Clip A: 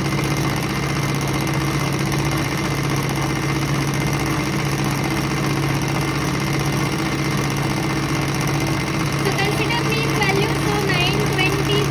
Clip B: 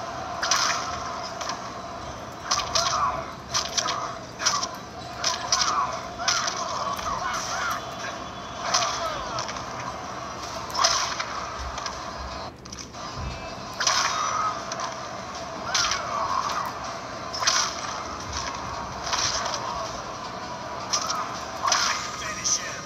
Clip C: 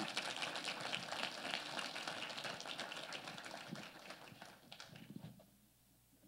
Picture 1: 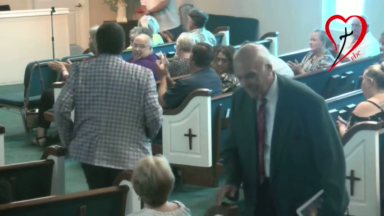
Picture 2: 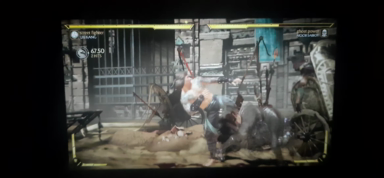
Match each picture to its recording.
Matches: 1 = C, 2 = B